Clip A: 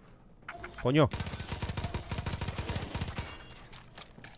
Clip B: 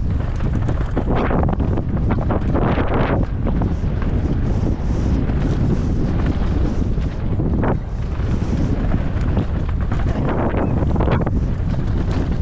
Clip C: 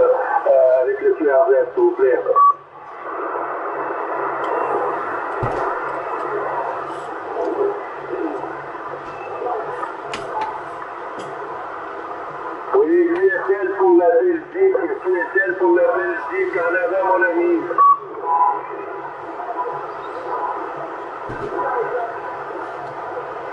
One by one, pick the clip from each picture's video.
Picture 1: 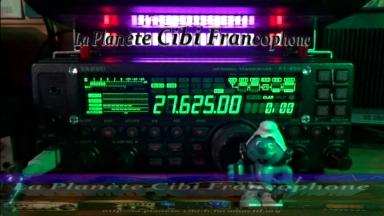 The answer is C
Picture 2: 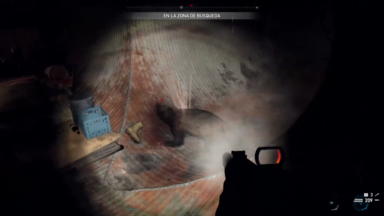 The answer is A